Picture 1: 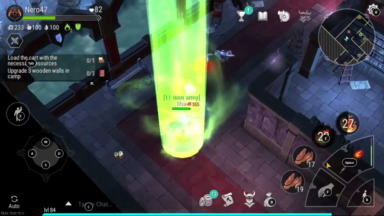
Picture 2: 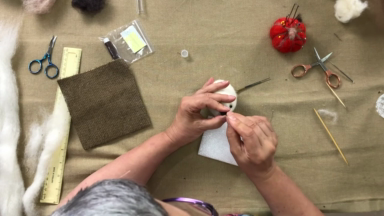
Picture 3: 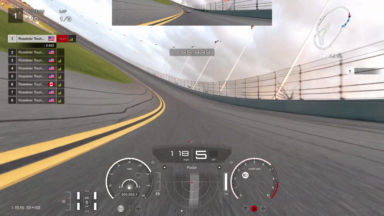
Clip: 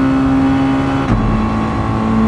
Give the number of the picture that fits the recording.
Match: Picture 3